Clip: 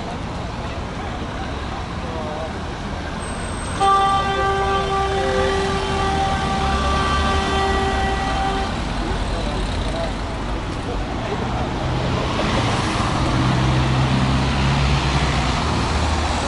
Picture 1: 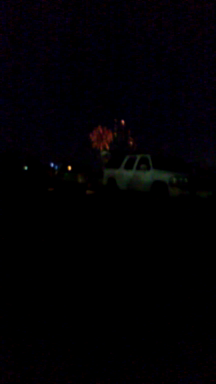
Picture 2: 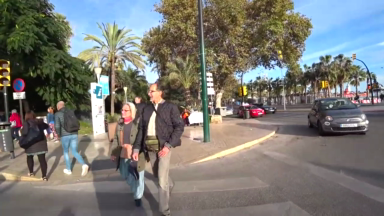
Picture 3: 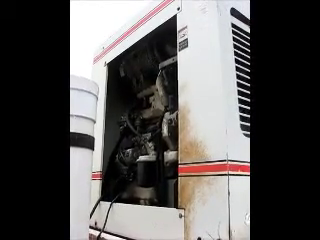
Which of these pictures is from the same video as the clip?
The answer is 2